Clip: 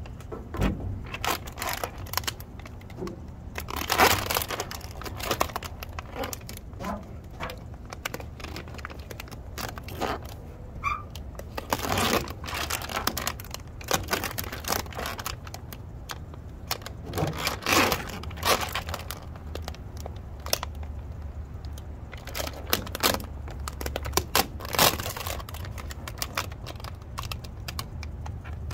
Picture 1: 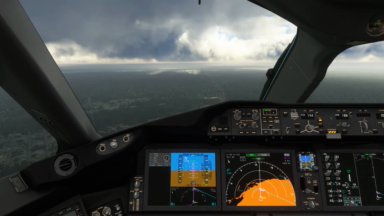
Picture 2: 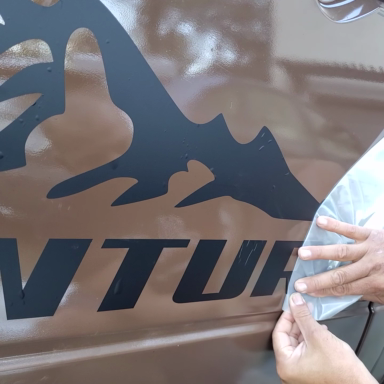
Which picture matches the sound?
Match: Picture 2